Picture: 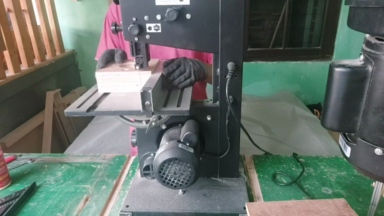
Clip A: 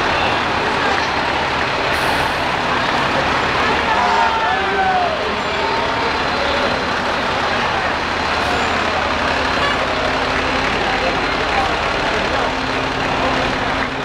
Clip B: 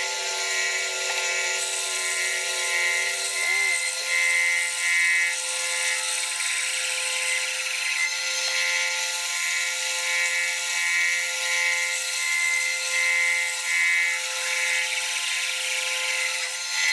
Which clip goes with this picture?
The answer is B